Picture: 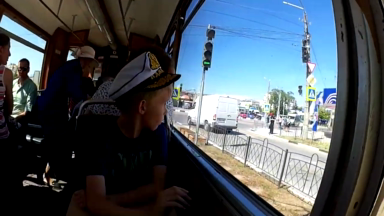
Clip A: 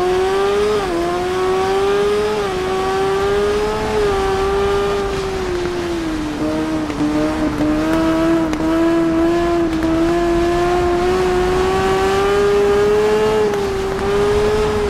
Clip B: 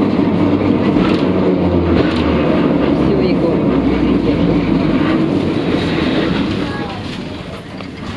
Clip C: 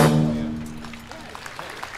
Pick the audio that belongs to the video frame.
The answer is B